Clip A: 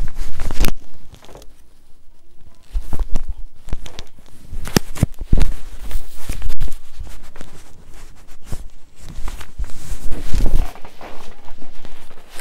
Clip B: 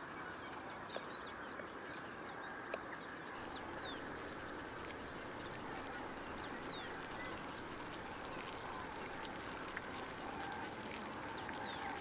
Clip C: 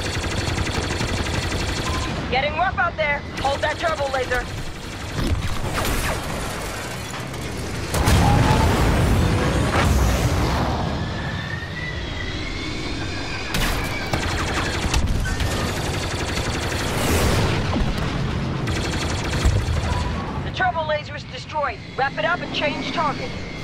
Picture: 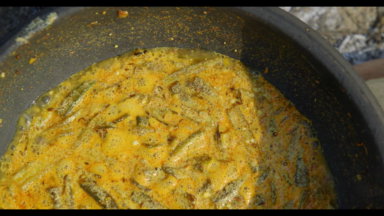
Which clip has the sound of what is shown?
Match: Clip B